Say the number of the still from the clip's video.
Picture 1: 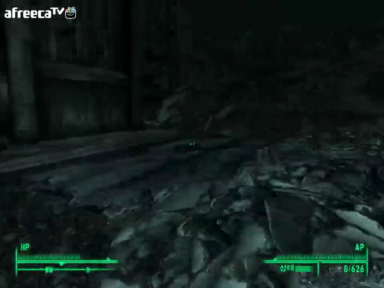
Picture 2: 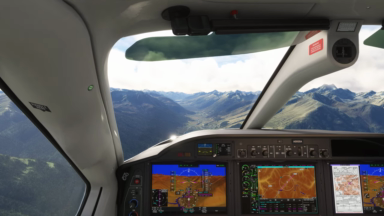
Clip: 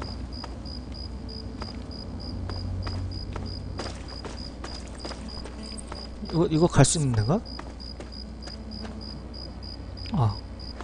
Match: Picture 1